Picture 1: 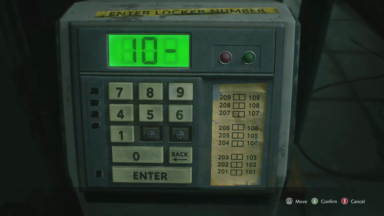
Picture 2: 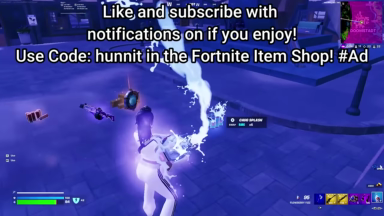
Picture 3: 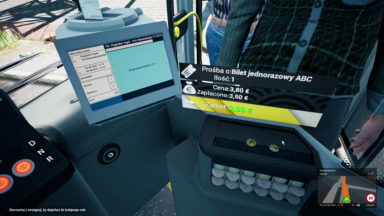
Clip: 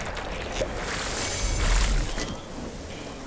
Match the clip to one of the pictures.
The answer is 2